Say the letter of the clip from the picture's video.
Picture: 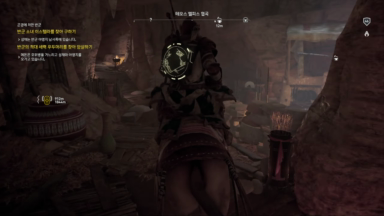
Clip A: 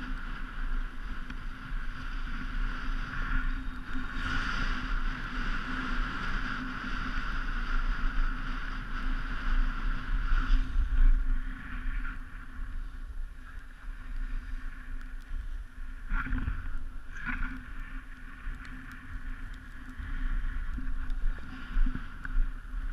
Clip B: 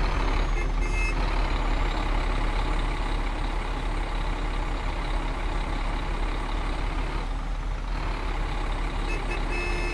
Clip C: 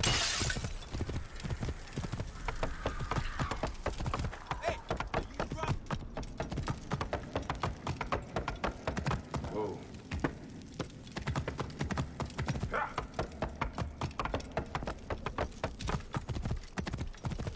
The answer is C